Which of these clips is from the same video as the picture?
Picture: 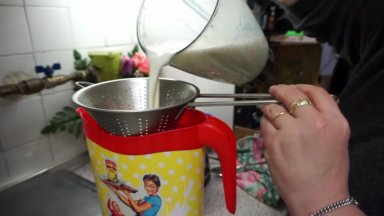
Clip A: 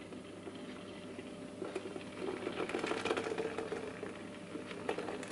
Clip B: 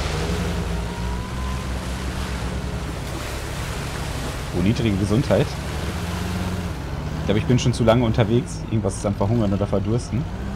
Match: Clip A